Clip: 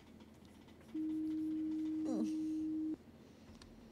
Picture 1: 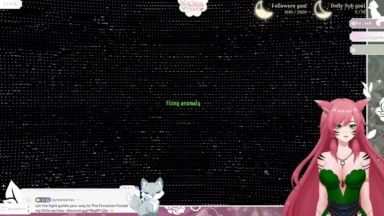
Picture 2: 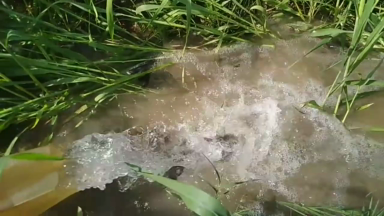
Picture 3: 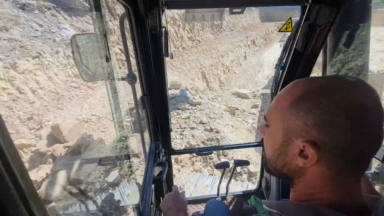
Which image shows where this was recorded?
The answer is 1